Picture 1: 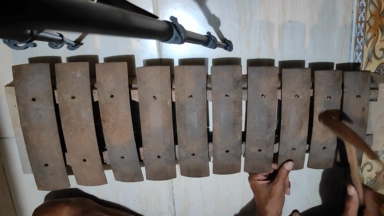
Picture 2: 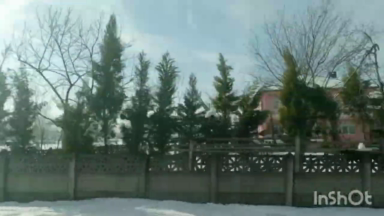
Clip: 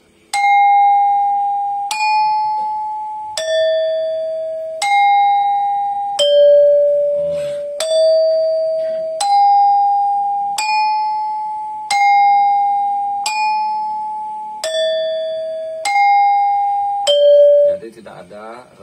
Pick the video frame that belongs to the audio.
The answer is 1